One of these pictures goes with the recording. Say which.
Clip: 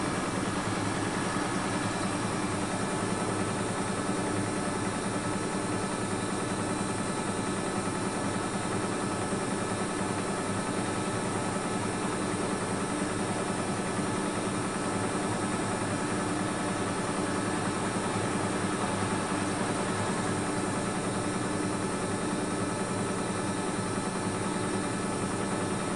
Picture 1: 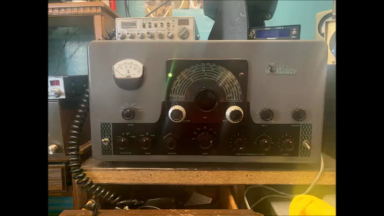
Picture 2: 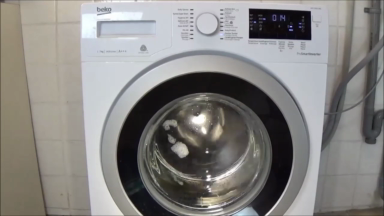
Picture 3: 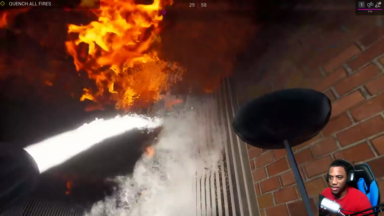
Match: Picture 2